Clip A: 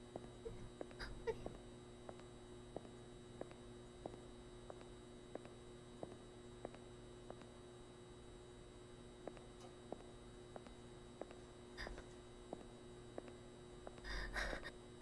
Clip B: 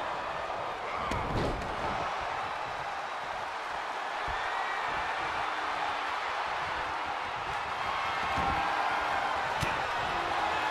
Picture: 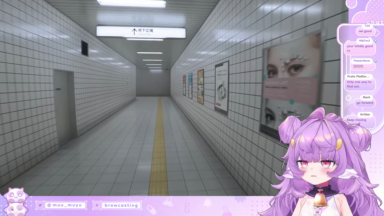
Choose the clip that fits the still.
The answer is A